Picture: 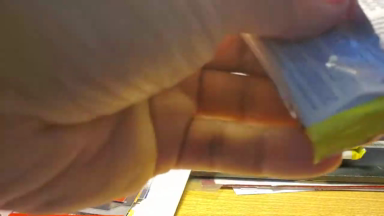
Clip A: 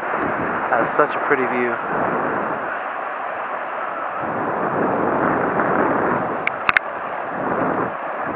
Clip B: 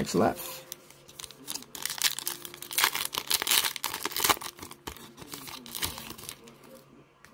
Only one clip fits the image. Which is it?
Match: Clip B